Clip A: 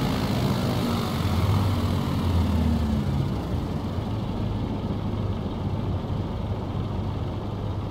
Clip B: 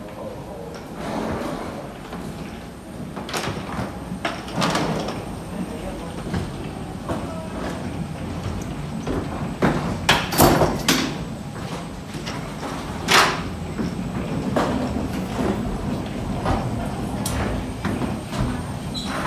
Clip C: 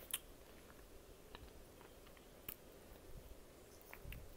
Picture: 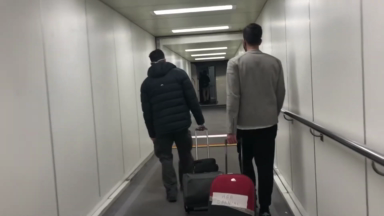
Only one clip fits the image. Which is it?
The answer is B